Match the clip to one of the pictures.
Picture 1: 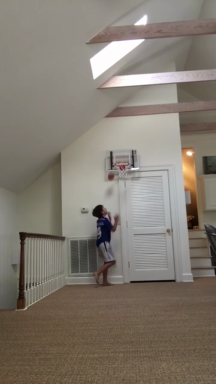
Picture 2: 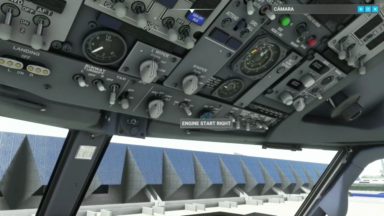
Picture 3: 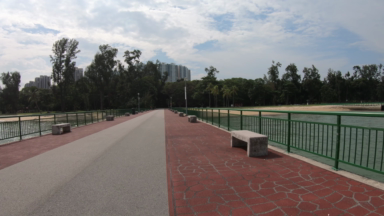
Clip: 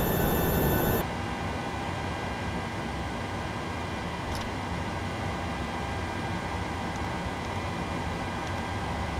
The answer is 2